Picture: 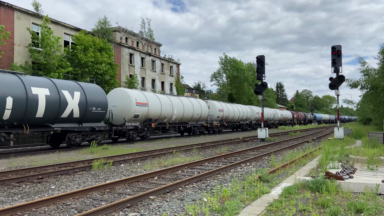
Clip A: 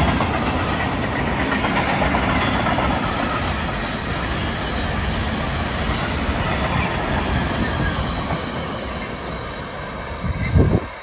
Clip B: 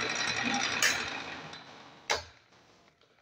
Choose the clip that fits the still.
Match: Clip A